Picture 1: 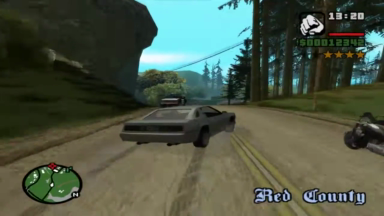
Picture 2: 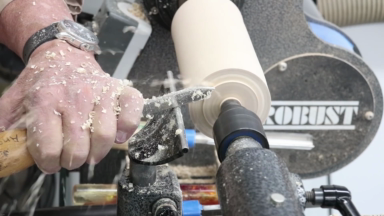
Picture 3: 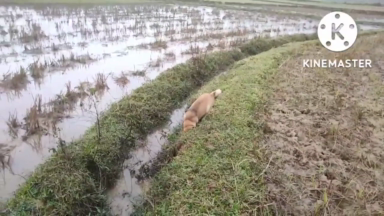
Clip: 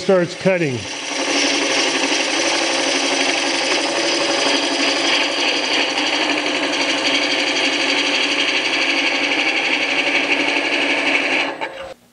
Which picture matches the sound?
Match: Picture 2